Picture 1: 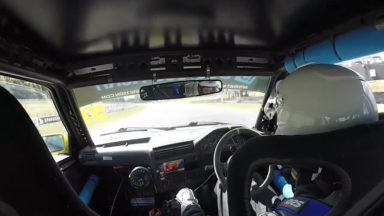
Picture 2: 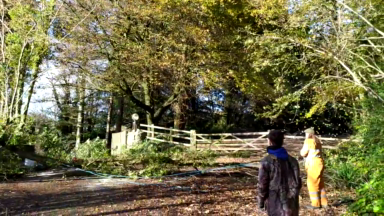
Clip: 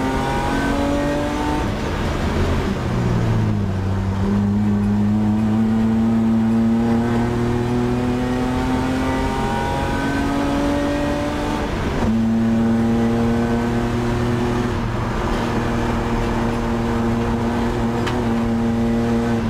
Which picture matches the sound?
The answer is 1